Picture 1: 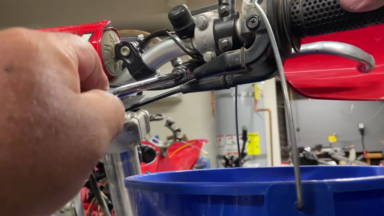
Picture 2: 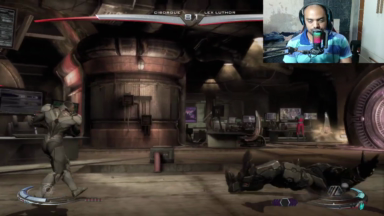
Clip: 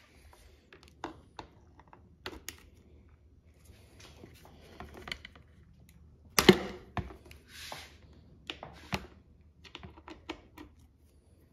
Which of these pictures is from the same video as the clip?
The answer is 1